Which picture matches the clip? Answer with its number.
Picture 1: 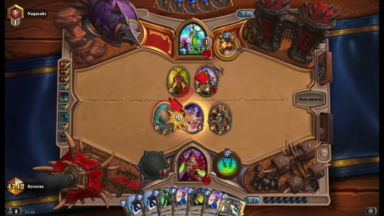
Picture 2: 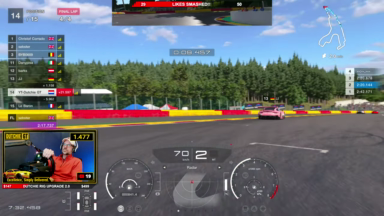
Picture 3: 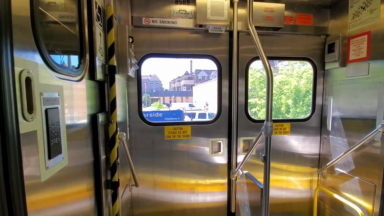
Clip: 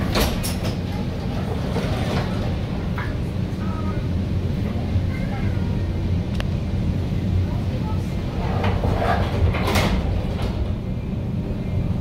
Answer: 3